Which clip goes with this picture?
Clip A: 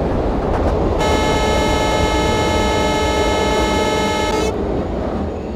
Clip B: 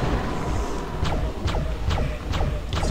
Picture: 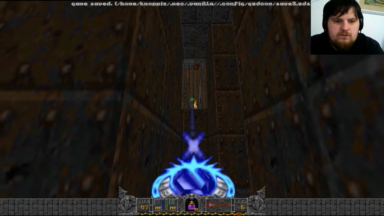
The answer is B